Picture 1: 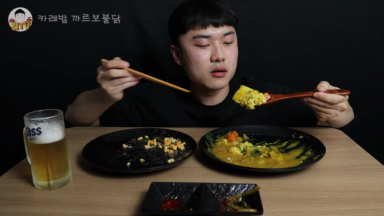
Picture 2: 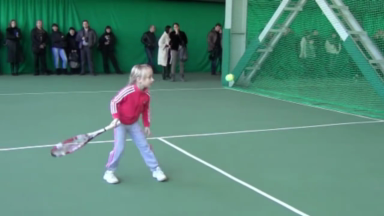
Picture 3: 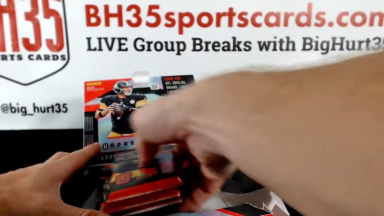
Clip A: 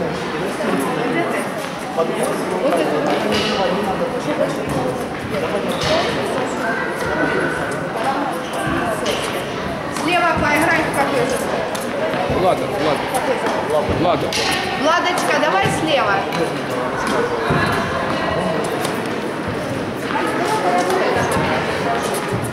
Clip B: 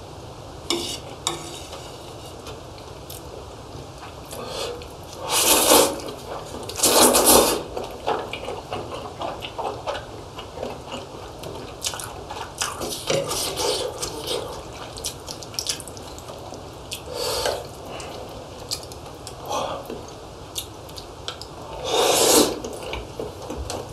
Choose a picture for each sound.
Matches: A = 2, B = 1